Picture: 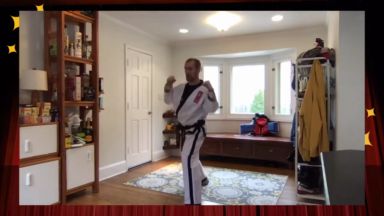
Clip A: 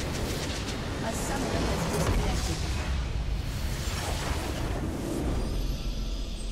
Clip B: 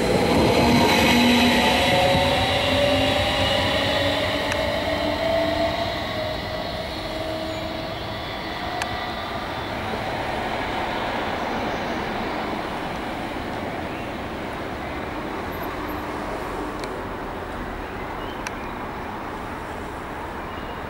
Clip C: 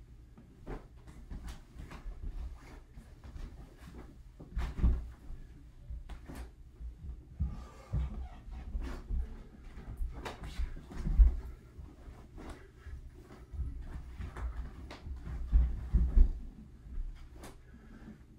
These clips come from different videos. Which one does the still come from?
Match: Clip C